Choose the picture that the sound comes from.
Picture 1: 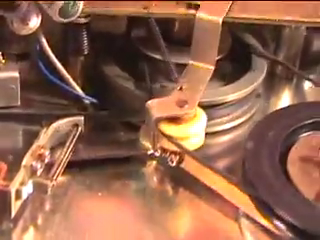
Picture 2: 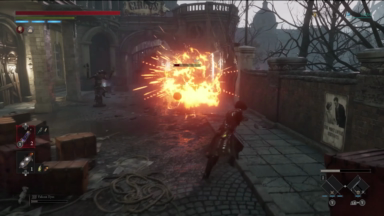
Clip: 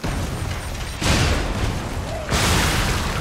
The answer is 2